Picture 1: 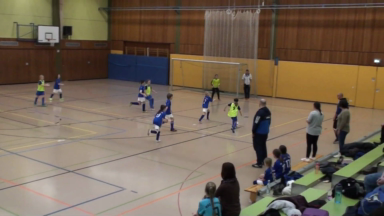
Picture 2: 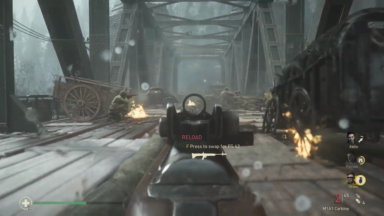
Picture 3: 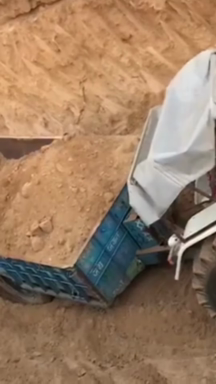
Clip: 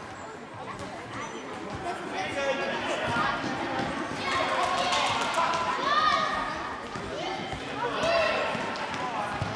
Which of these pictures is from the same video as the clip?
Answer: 1